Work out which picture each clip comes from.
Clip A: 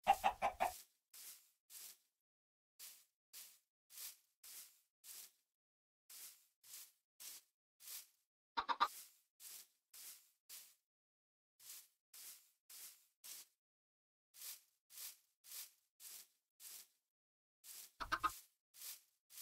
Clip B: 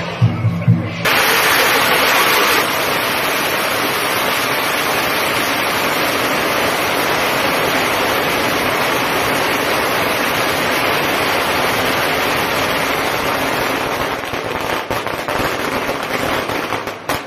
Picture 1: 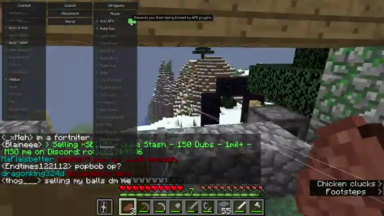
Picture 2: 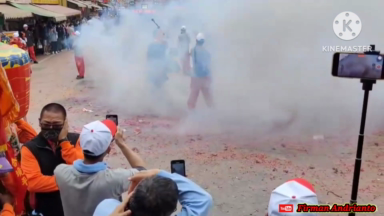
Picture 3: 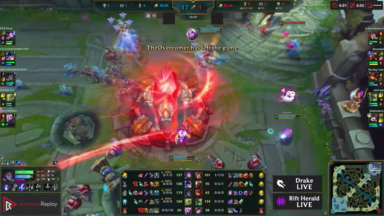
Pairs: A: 1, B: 2